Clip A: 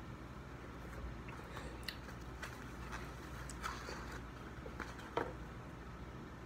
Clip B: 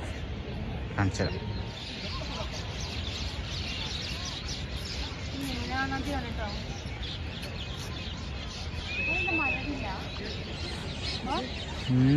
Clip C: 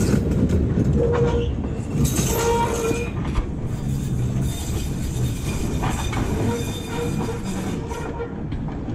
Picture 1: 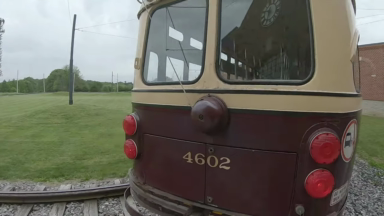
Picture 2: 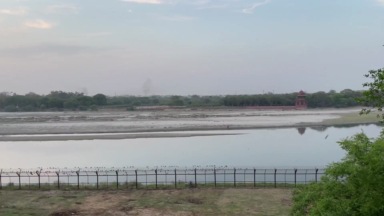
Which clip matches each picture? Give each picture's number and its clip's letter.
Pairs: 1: C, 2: B